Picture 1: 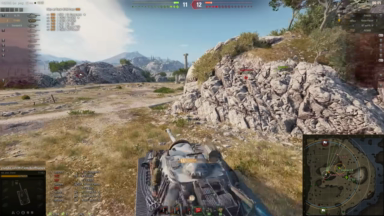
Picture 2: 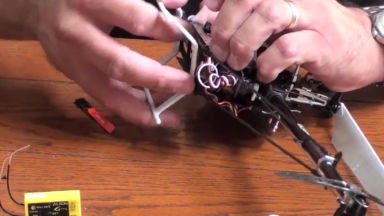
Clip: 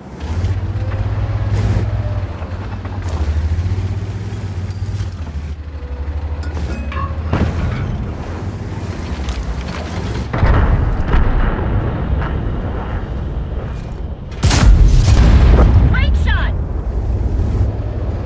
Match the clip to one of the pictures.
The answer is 1